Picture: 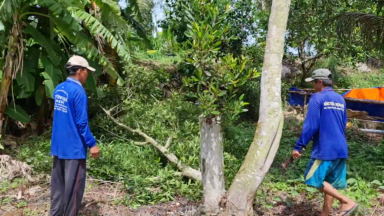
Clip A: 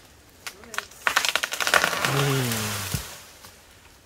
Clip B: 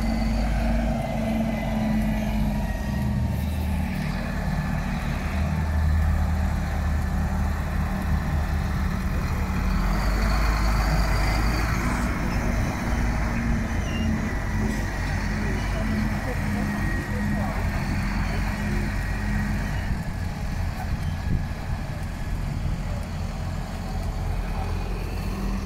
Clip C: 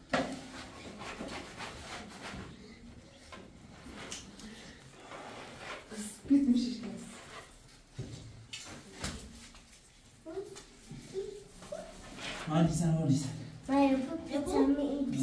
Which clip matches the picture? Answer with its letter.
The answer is A